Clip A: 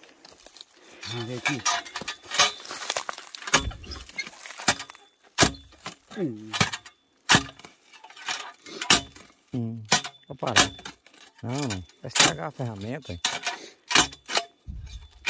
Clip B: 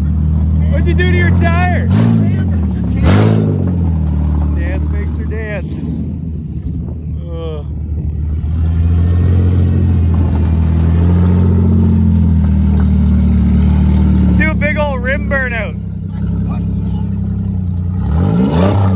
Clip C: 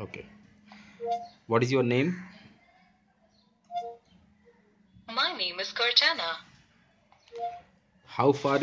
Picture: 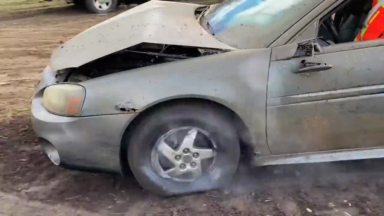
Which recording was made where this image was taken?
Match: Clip B